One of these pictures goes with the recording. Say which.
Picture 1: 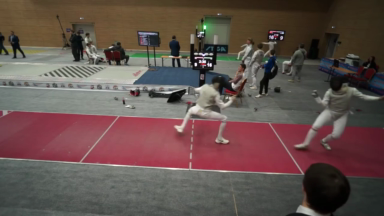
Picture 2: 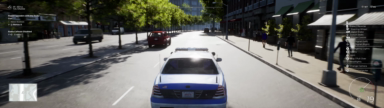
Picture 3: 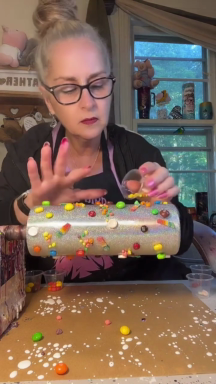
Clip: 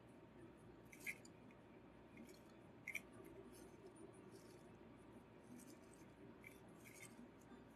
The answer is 3